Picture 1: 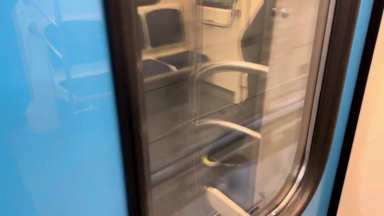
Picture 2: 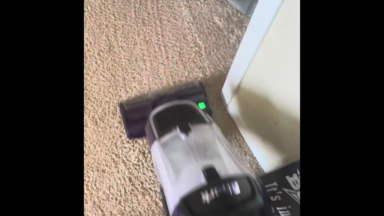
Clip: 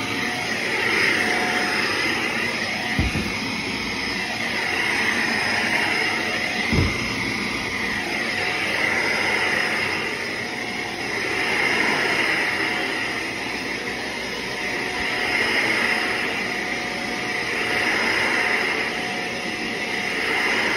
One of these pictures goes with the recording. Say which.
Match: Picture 2